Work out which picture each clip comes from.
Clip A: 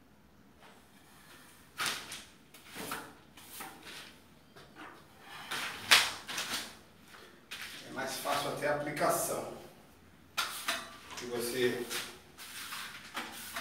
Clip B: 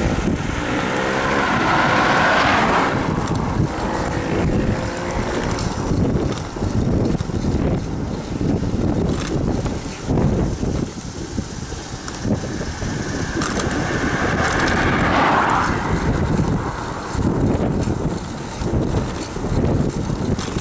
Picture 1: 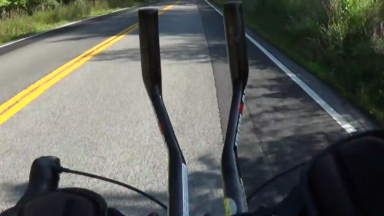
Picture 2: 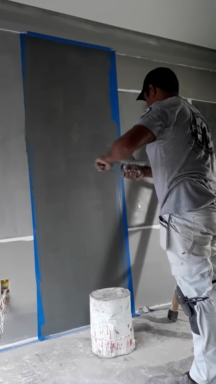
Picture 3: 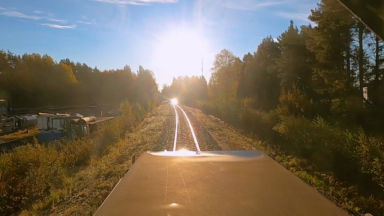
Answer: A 2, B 1